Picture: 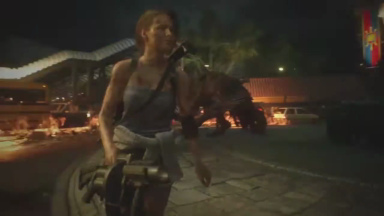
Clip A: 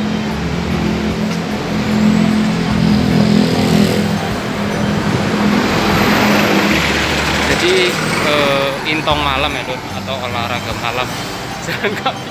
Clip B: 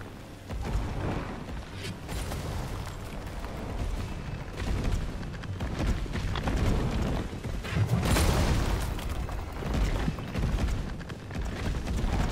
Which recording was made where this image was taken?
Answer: B